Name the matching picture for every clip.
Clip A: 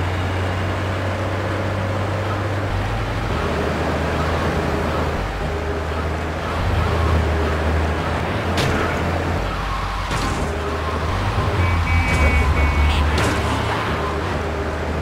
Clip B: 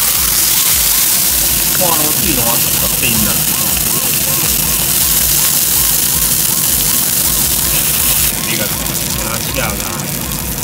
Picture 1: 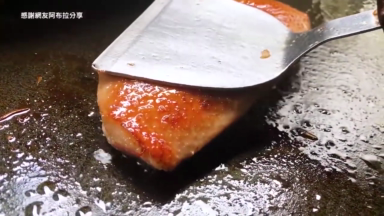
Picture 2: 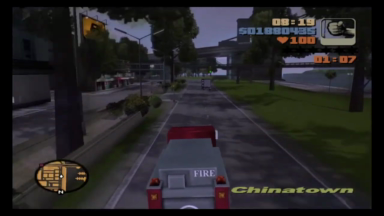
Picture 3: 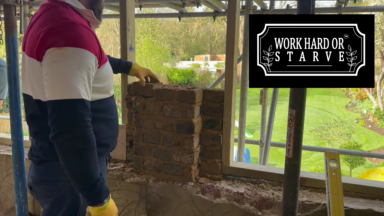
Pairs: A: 2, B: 1